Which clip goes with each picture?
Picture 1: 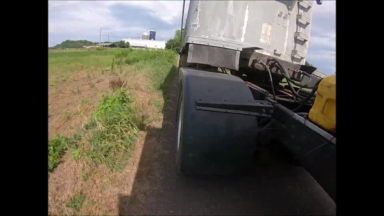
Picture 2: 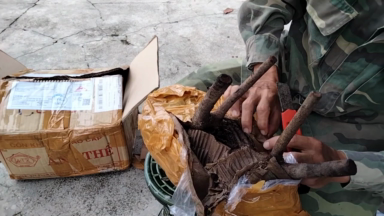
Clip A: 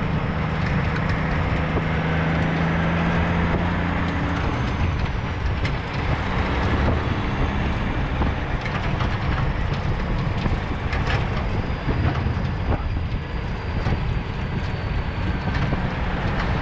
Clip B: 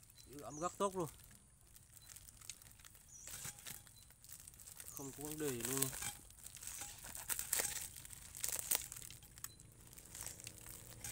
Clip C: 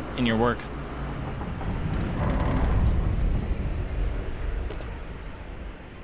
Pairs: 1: A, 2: B